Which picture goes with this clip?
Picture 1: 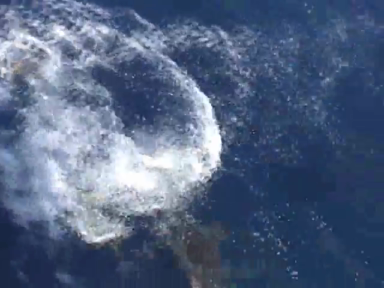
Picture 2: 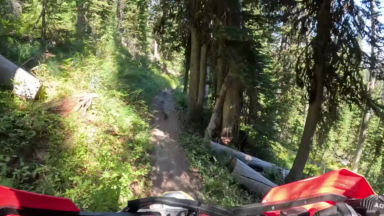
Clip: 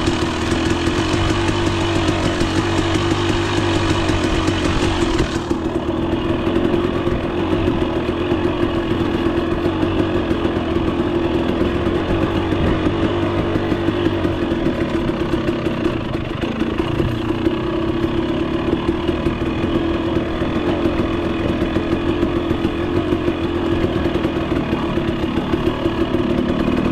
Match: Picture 2